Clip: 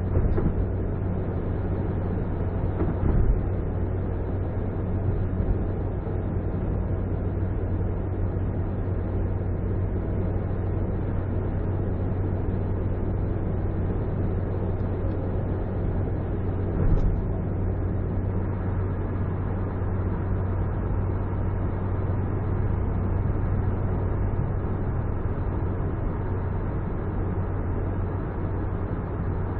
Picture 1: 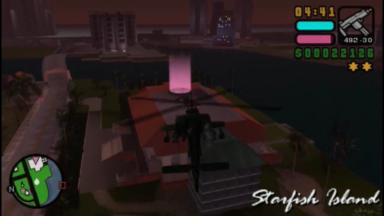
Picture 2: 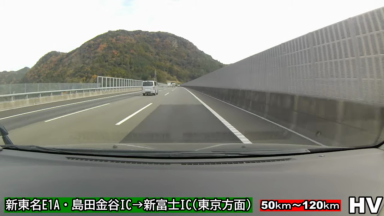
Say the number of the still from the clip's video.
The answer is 2